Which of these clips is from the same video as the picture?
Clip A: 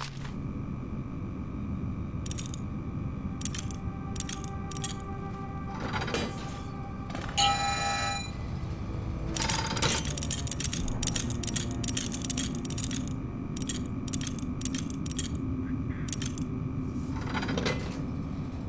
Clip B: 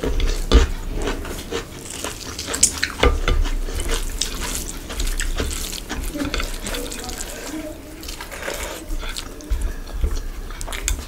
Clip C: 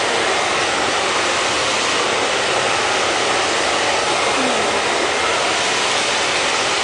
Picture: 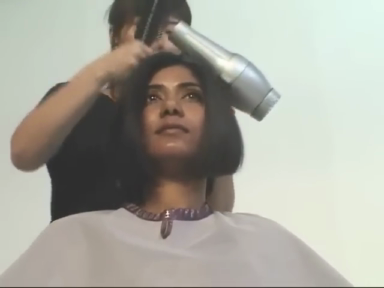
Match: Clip C